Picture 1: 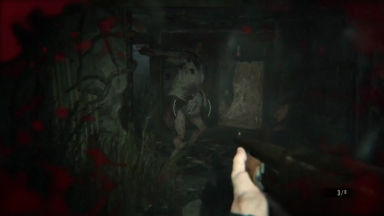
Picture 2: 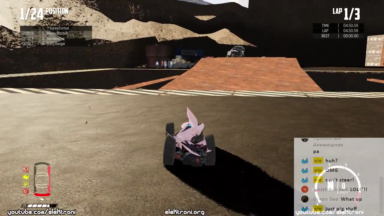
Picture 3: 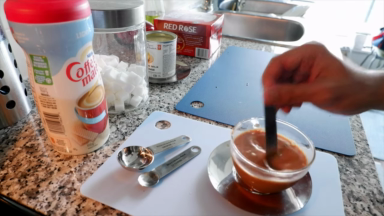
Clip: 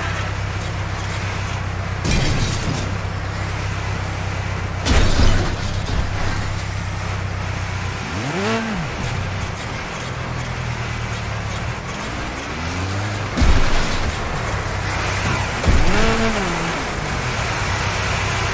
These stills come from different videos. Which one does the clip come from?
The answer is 2